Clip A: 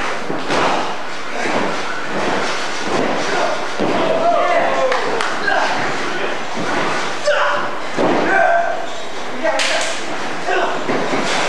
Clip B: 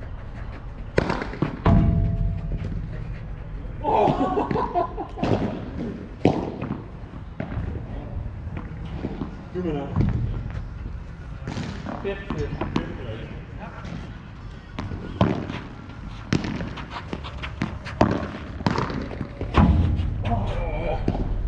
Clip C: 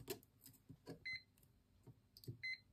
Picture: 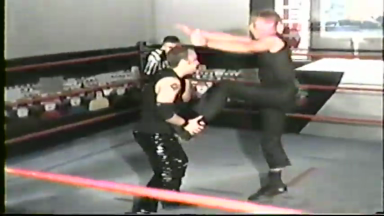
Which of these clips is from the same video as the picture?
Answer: A